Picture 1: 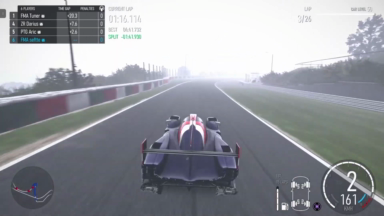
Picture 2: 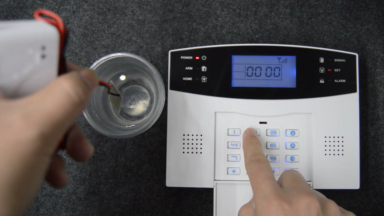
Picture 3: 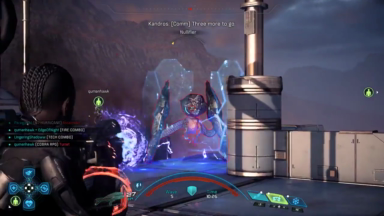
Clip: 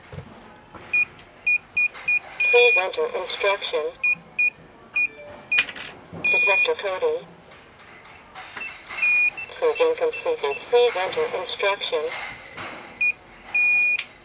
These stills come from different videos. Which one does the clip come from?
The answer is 2